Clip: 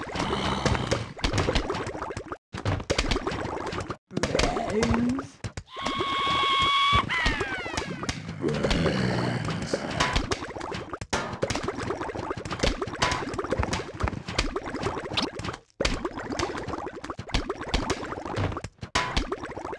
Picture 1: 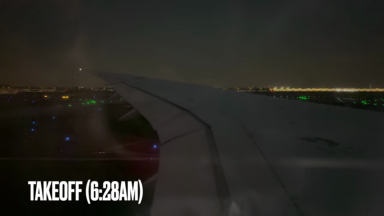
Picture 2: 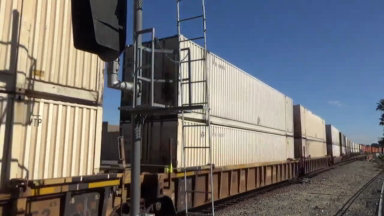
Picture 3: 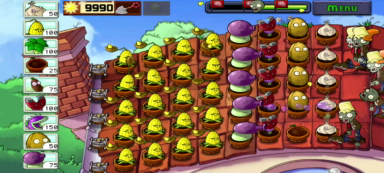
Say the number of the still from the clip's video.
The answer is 3